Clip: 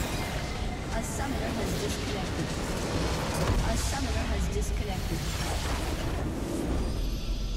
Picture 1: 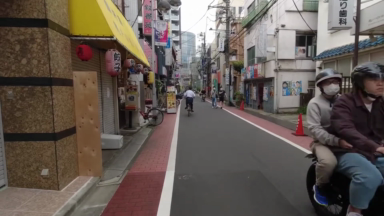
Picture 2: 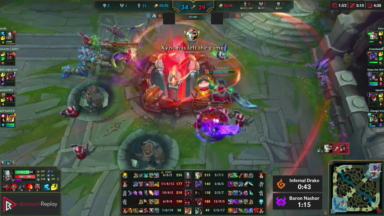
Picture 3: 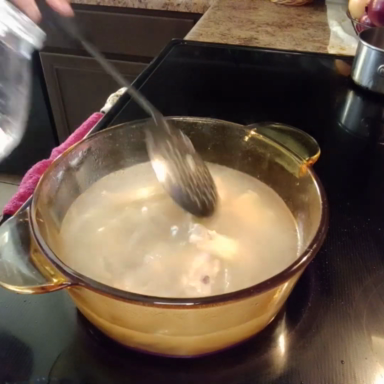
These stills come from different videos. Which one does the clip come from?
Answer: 2